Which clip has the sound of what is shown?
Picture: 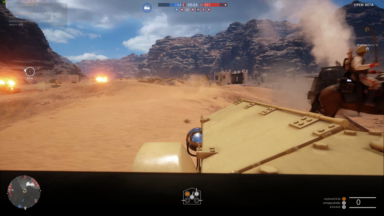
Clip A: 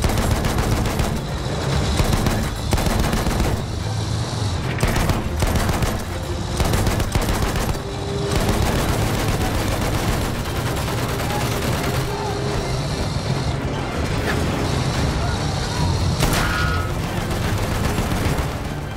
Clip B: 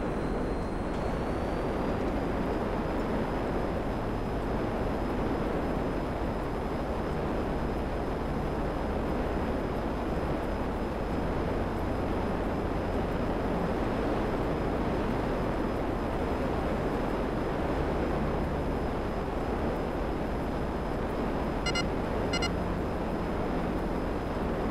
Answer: A